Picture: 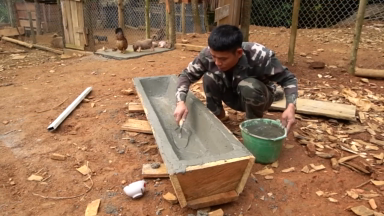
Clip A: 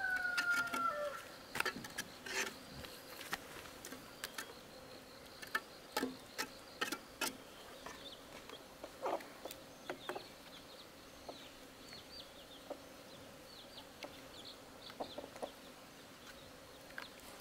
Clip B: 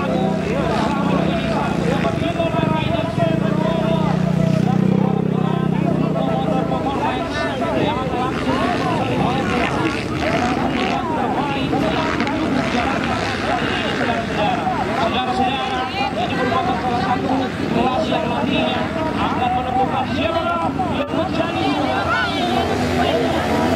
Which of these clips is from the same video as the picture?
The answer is A